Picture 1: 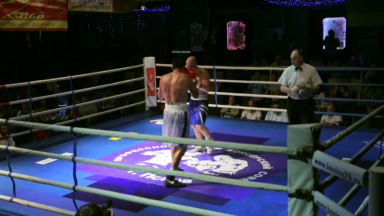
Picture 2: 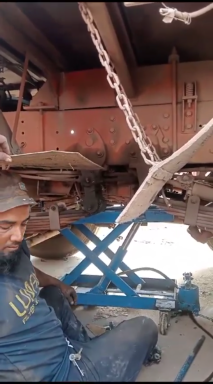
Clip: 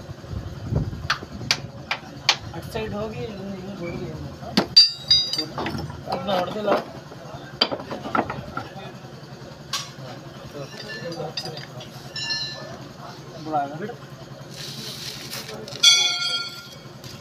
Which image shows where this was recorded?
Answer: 2